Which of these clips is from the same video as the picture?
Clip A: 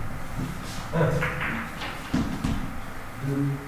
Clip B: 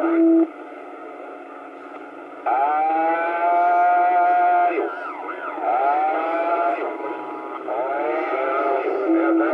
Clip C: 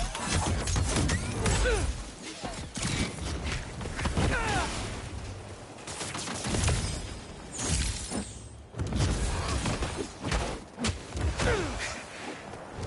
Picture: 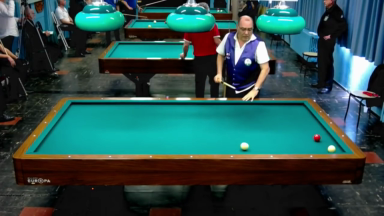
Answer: A